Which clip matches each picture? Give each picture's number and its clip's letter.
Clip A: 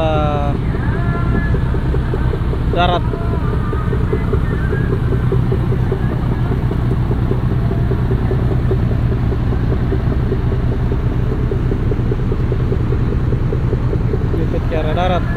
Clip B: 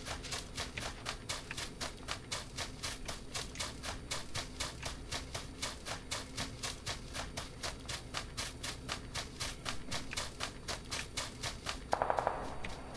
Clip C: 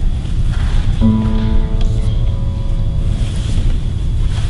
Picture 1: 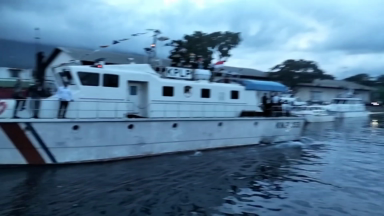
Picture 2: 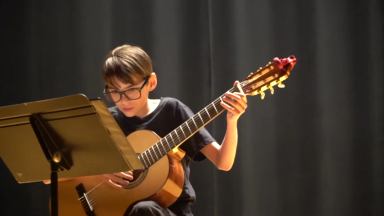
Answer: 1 A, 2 C